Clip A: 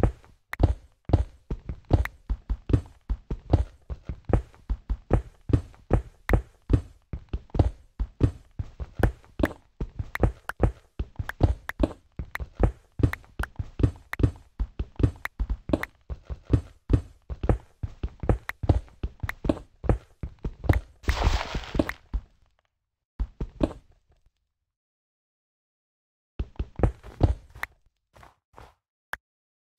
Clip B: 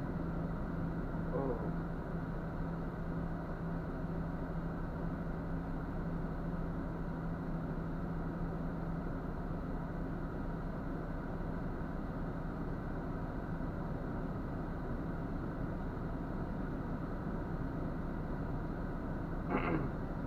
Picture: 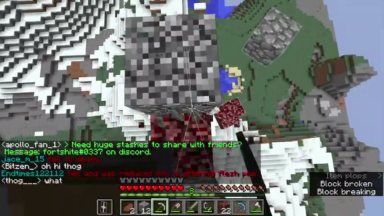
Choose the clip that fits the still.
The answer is A